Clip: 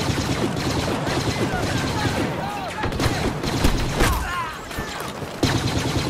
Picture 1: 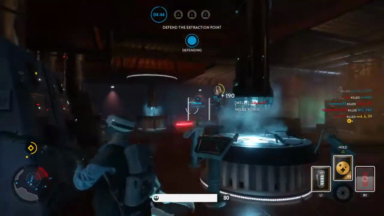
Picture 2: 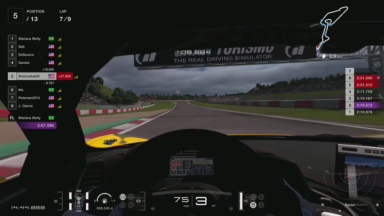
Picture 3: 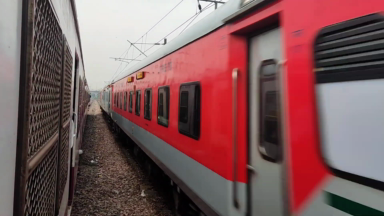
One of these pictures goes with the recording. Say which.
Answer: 1